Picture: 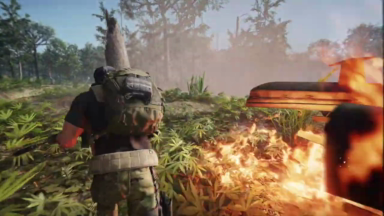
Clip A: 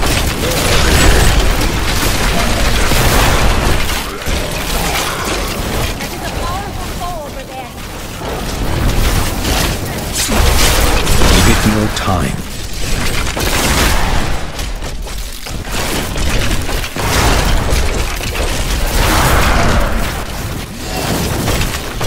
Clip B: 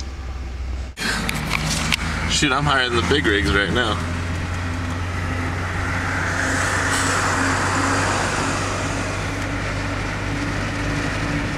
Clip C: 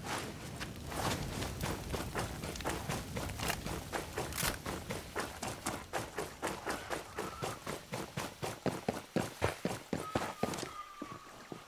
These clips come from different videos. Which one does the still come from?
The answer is C